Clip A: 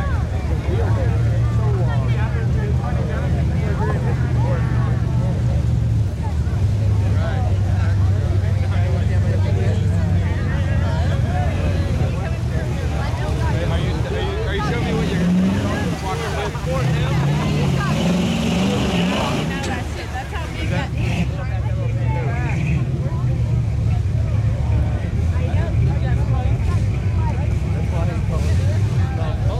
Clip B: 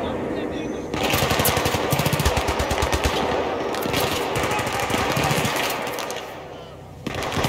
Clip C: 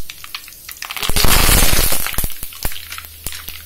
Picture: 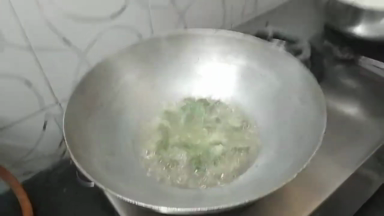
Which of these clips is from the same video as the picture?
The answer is C